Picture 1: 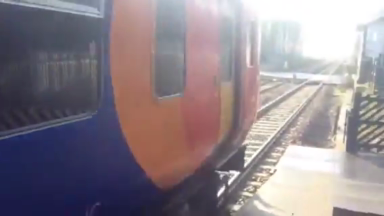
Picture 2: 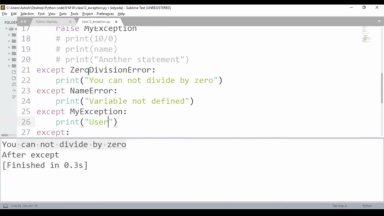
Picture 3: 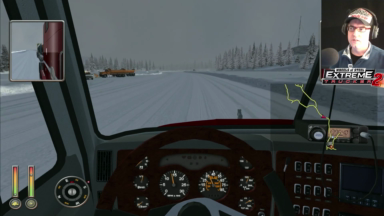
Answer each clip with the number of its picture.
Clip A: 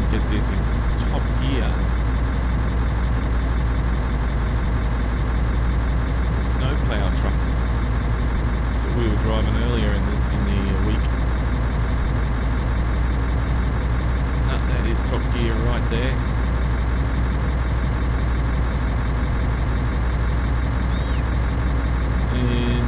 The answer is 3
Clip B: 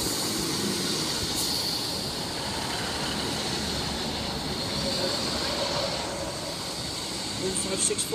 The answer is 1